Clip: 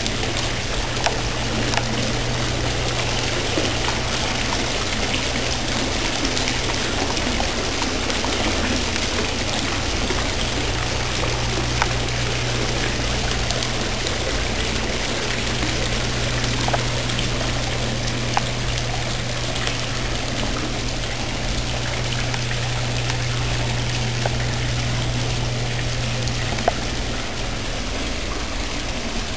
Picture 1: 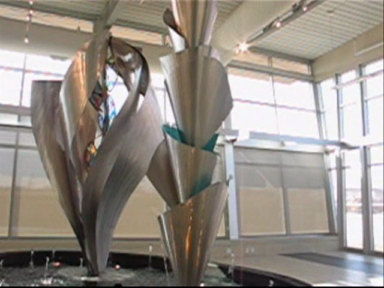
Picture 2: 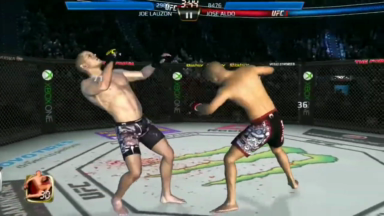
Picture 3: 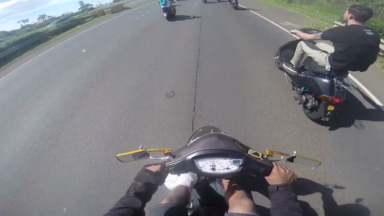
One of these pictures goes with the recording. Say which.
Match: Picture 1